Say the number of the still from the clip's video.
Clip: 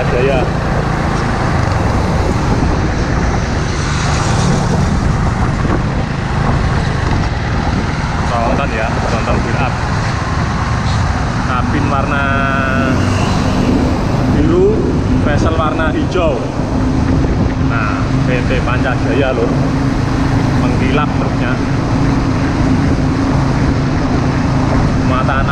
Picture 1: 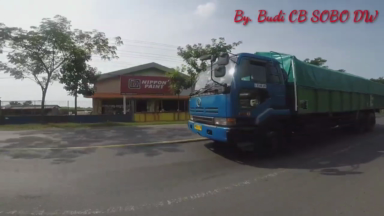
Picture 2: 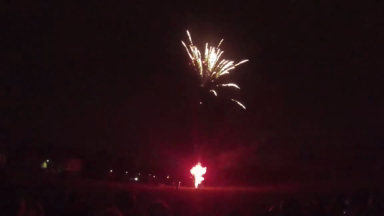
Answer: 1